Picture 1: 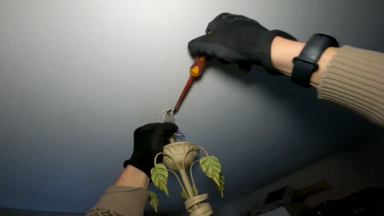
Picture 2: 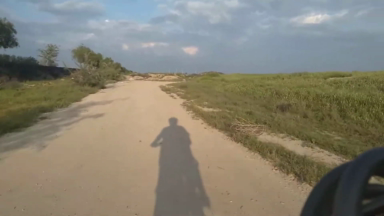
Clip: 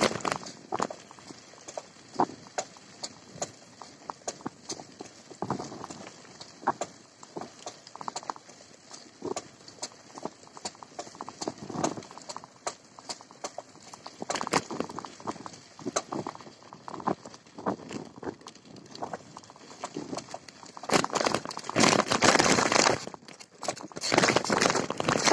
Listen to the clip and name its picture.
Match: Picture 2